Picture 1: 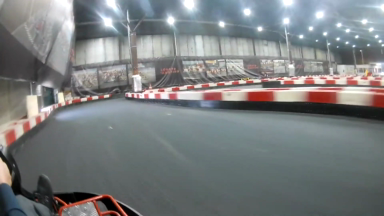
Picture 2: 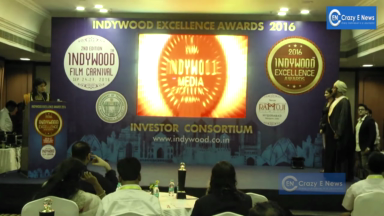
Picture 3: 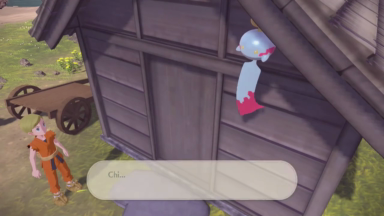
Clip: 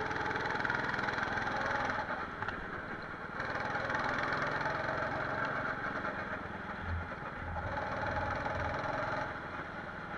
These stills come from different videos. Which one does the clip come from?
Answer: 1